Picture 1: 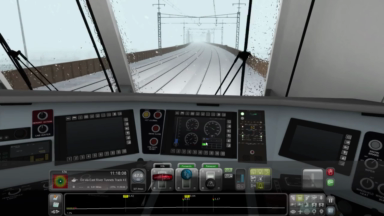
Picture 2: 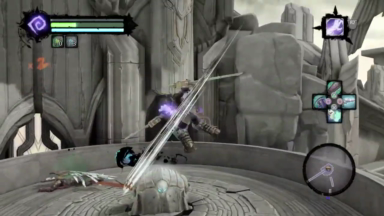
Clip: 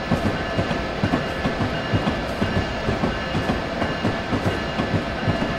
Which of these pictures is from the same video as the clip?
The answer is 1